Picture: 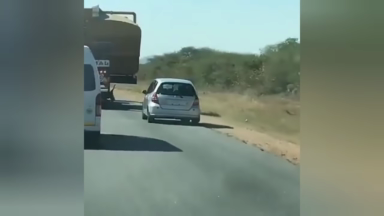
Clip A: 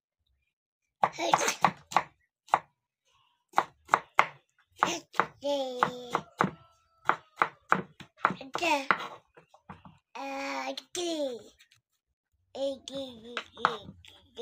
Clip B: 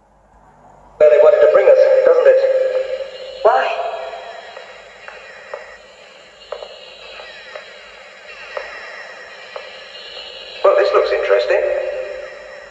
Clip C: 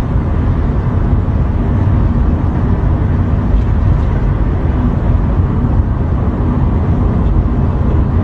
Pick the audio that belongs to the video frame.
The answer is C